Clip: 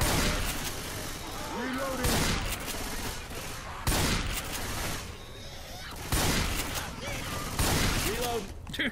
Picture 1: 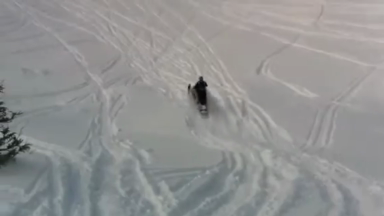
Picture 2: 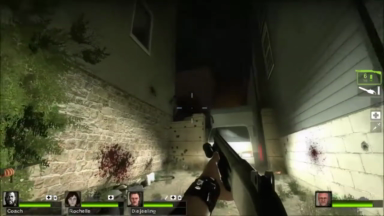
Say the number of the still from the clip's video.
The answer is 2